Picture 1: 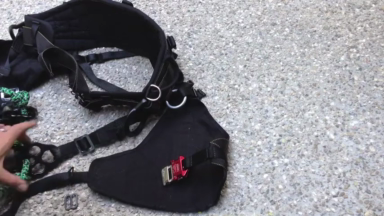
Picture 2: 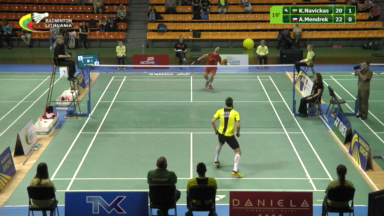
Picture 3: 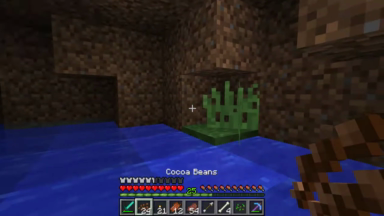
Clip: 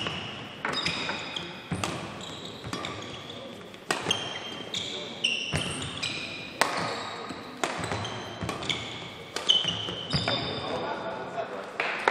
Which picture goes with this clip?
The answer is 2